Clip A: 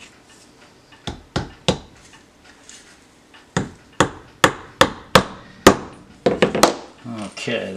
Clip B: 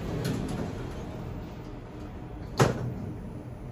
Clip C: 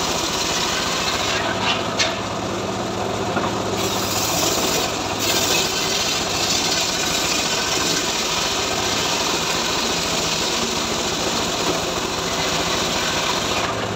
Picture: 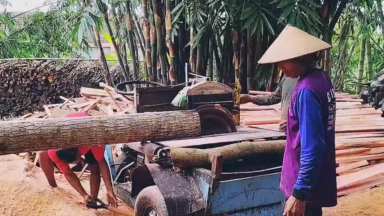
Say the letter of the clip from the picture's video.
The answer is C